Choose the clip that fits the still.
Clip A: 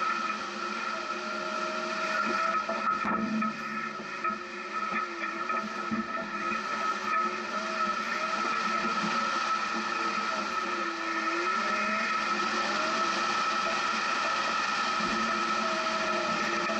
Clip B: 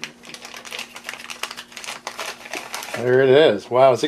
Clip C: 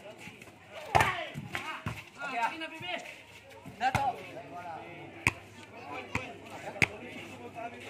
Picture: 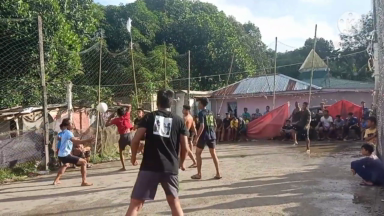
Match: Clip C